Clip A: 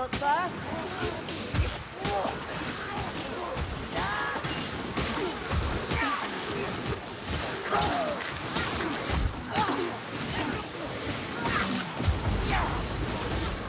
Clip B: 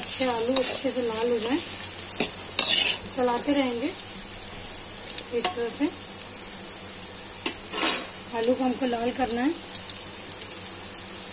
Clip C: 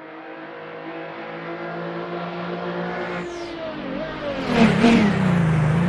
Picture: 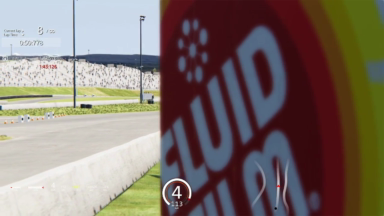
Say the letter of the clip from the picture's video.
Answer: C